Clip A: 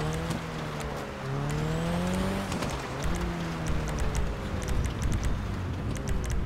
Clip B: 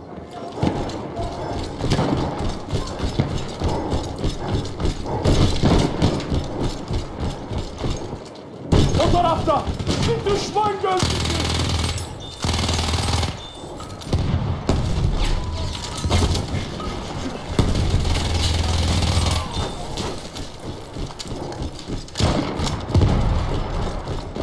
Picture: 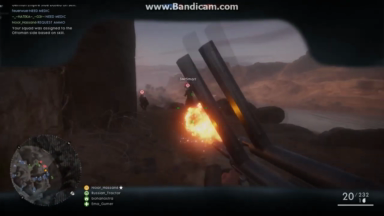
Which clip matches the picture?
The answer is B